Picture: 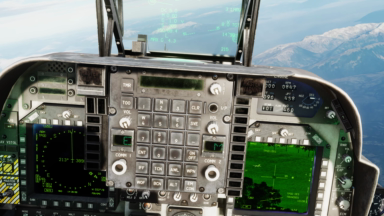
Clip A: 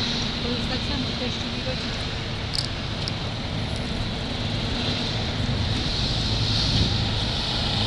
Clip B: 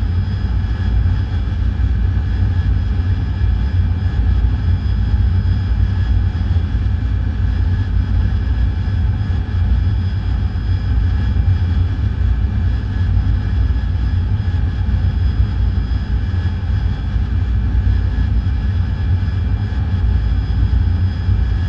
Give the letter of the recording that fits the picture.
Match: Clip B